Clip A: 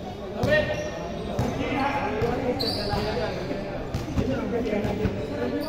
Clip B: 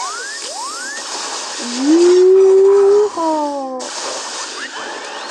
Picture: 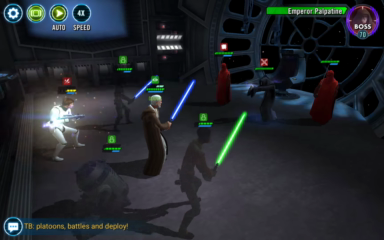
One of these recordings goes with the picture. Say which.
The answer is B